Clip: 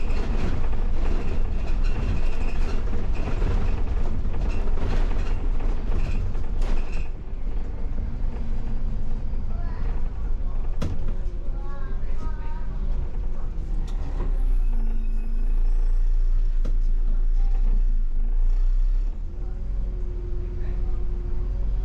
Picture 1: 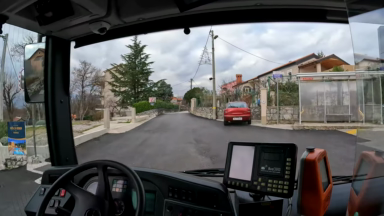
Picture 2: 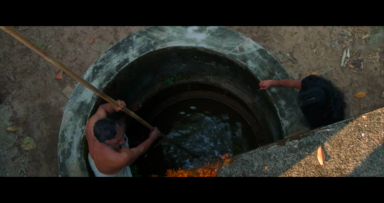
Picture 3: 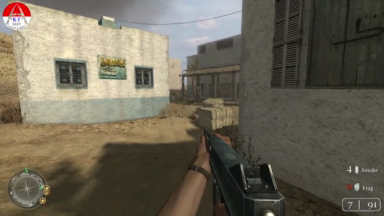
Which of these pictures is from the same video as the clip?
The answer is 1